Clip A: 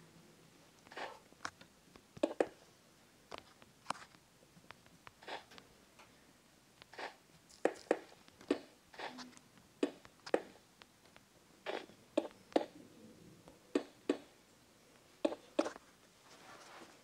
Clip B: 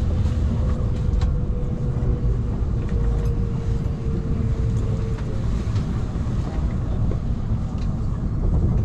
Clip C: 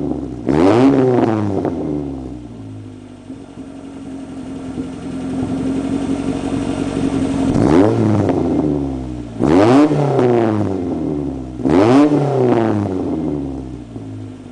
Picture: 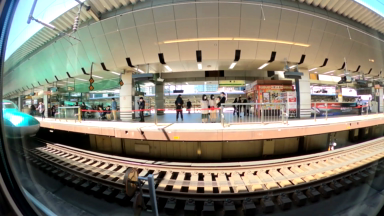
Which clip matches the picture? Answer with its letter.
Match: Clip B